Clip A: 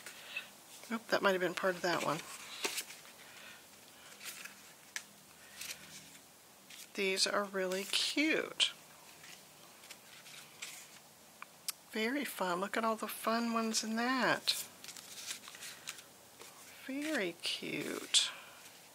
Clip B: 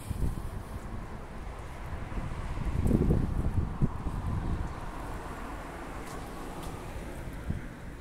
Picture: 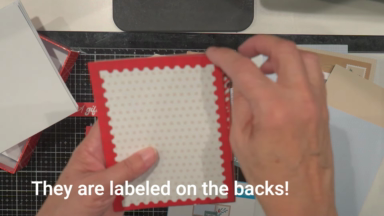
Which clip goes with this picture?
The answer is A